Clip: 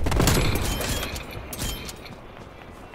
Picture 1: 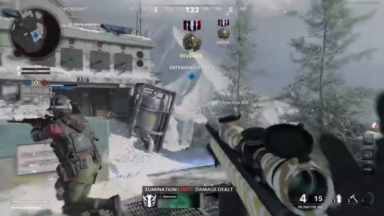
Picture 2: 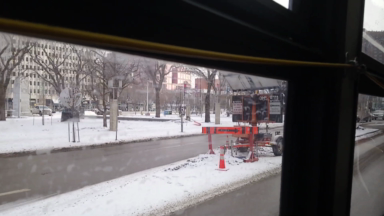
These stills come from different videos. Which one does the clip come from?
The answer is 1